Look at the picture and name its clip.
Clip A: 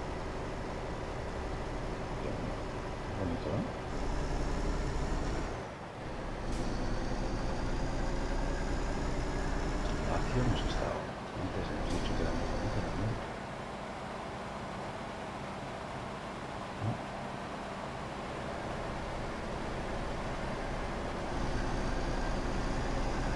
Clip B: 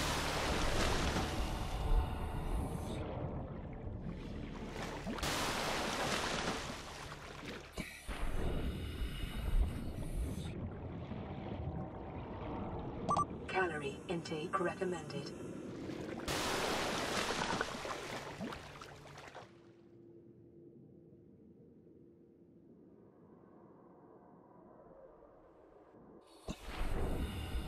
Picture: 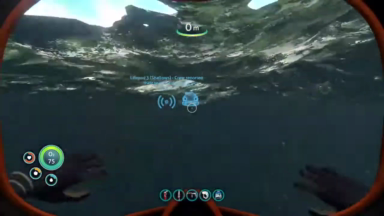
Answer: B